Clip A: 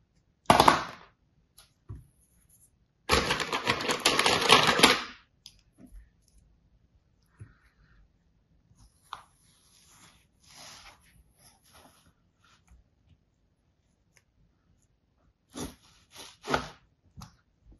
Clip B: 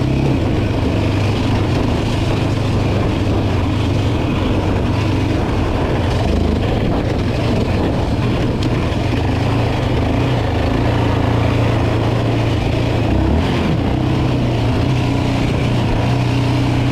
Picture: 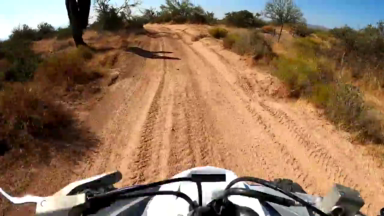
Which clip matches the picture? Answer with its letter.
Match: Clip B